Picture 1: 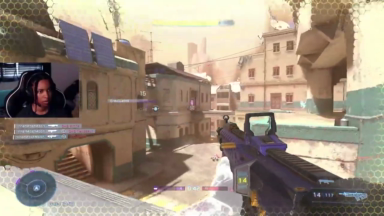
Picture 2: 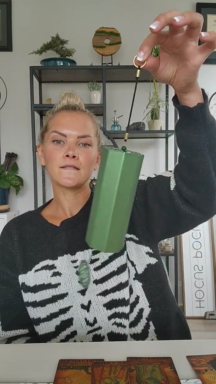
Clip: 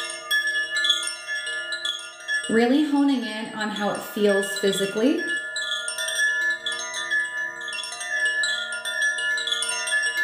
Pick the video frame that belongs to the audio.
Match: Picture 2